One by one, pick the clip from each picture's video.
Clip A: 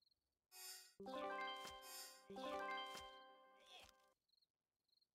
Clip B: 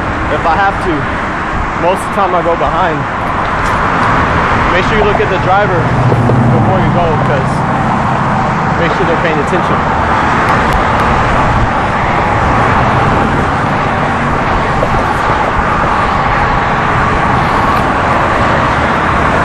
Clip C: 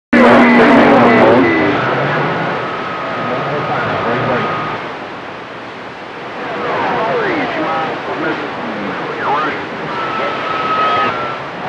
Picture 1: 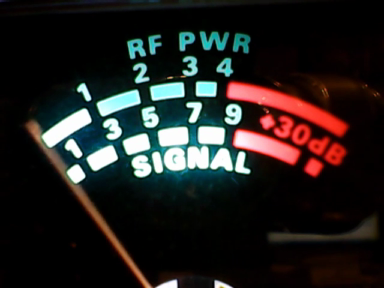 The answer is C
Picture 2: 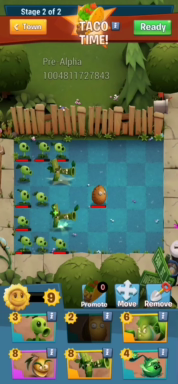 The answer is A